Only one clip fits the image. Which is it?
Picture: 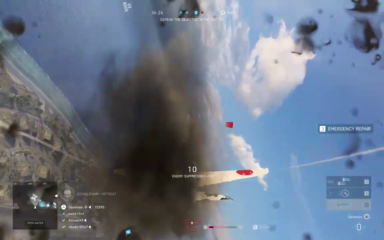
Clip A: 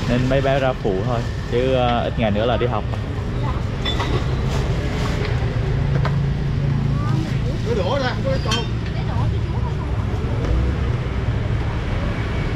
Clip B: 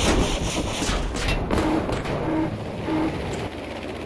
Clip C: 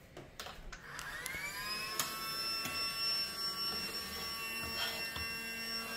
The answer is B